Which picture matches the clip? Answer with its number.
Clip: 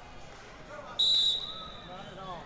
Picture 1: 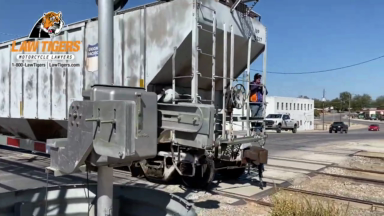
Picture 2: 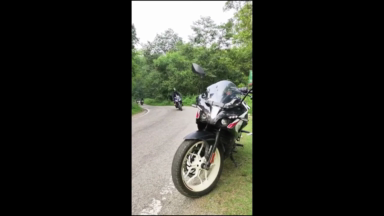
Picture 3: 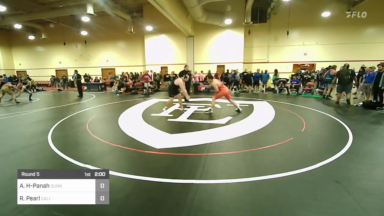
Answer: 3